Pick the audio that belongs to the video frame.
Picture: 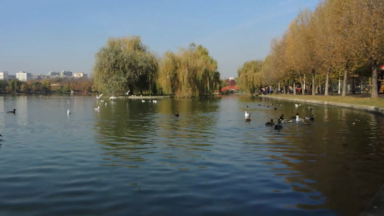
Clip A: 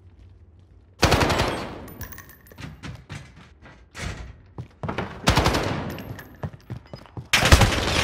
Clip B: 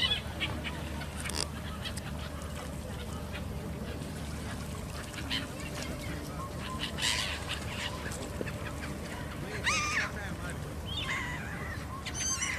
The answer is B